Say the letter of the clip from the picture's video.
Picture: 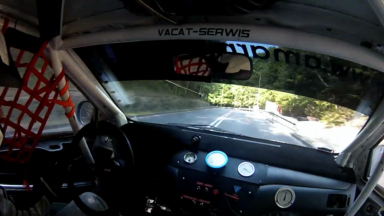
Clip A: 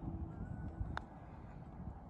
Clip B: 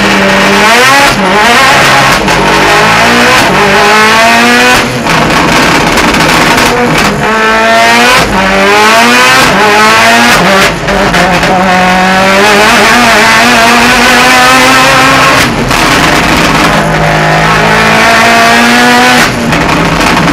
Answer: B